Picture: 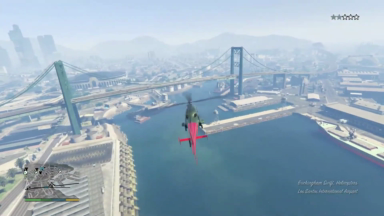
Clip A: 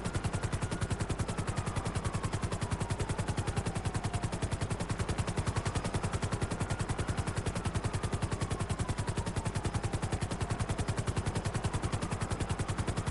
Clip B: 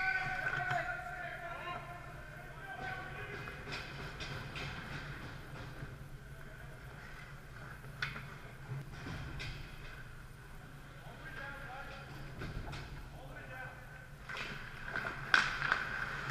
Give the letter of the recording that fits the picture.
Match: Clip A